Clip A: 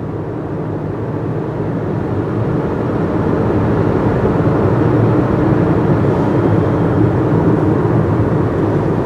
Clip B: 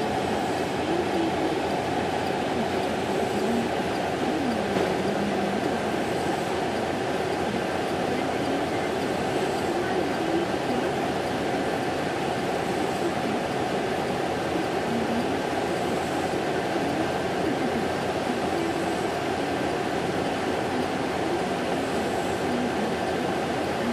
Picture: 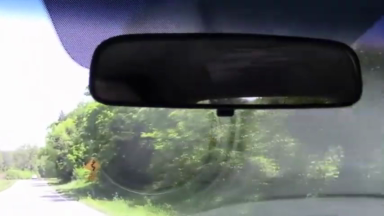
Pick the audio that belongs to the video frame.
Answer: A